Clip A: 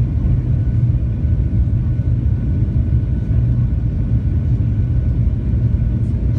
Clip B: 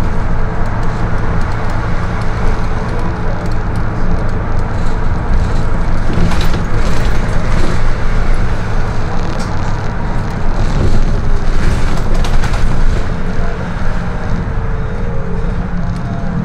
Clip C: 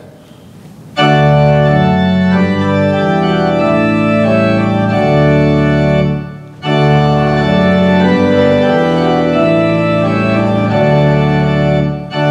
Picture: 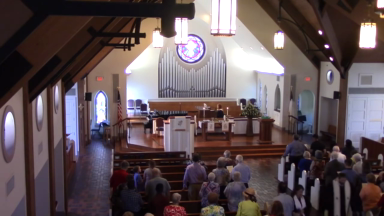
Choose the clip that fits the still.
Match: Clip C